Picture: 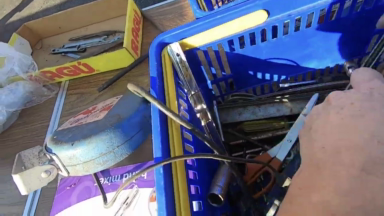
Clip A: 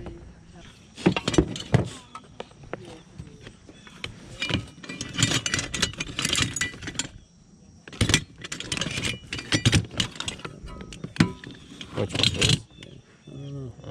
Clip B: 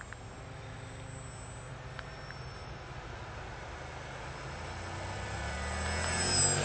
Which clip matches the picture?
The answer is A